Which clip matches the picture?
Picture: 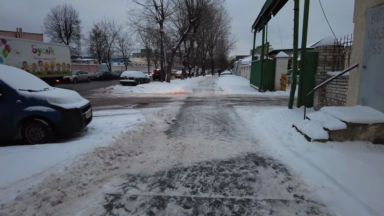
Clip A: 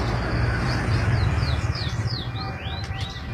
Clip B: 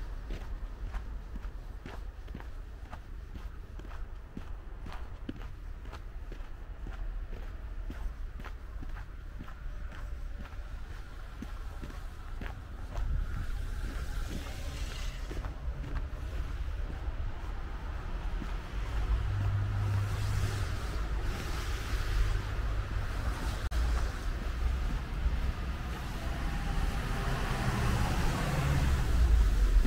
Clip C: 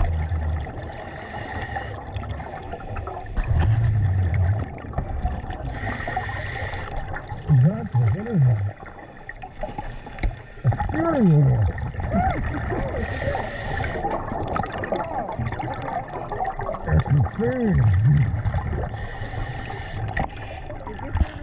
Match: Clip B